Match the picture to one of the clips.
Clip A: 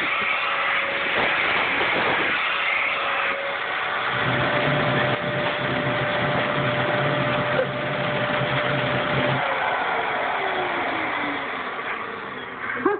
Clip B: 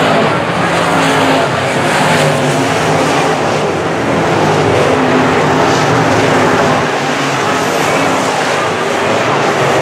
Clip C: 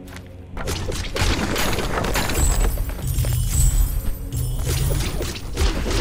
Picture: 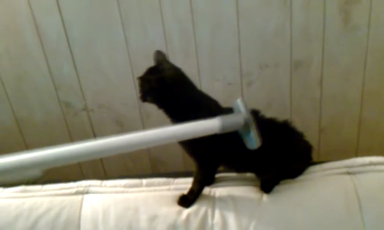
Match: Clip A